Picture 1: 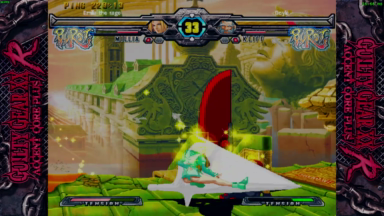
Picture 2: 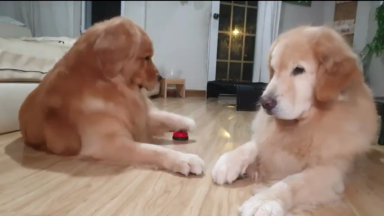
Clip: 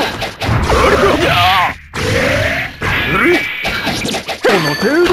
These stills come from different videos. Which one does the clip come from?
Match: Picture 1